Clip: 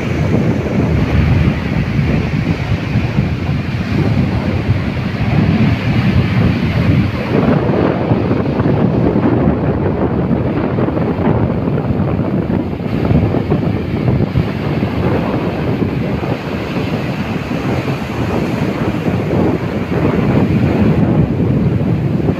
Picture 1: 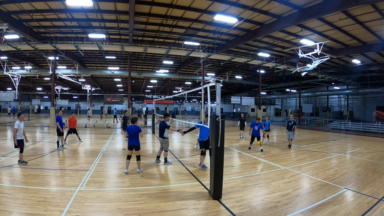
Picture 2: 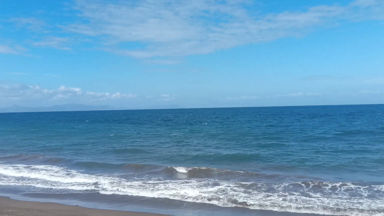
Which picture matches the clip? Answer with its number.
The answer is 2